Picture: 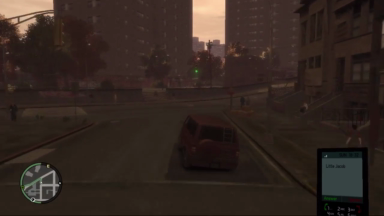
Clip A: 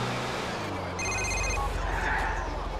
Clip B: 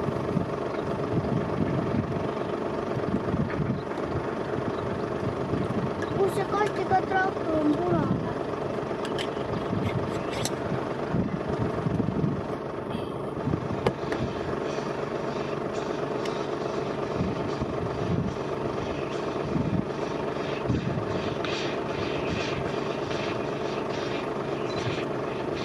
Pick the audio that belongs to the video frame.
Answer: A